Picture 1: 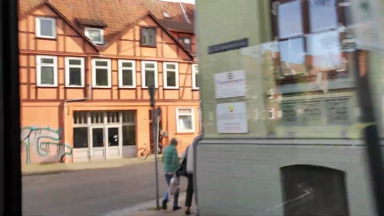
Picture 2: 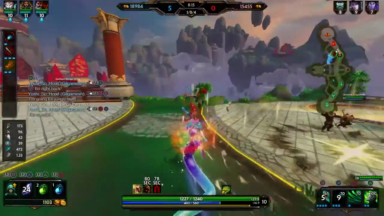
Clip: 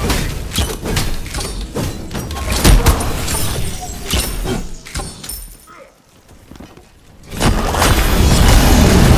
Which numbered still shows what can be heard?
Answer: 2